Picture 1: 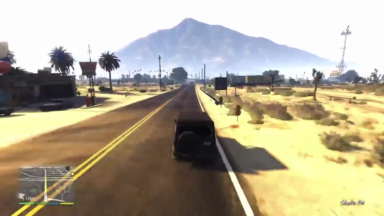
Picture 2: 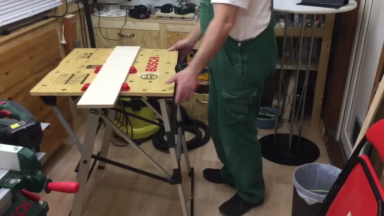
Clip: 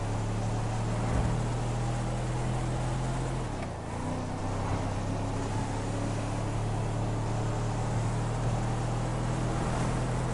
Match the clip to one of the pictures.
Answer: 1